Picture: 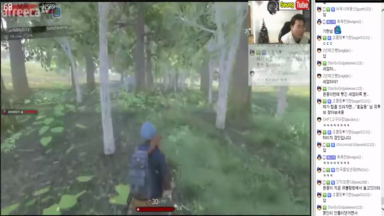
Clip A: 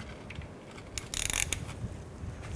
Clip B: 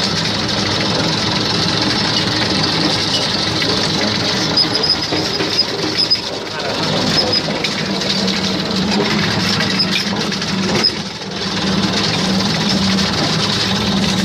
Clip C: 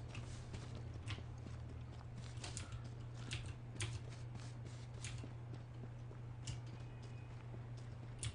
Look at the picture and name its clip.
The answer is C